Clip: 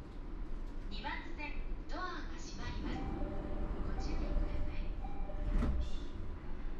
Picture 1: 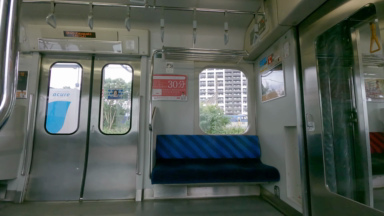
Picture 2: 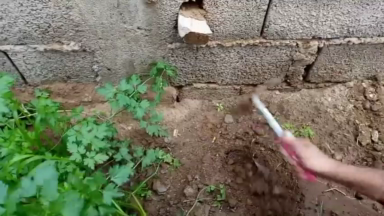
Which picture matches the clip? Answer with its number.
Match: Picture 1